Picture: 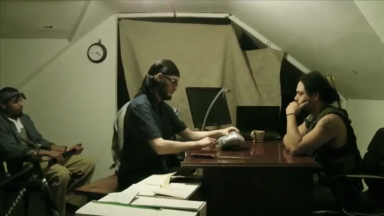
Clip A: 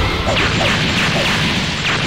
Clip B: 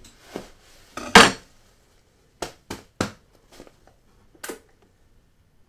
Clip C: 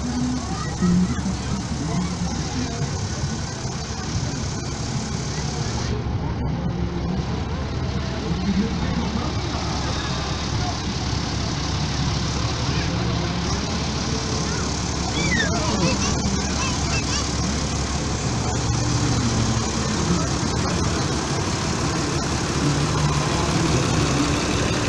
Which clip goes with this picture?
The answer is B